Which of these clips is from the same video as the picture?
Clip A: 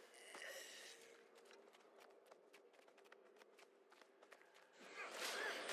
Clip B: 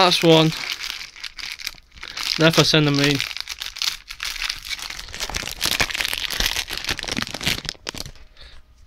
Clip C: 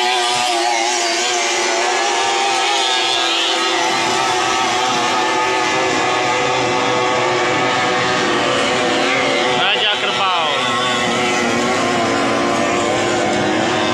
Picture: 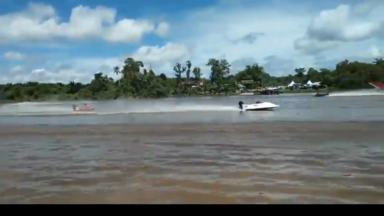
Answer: C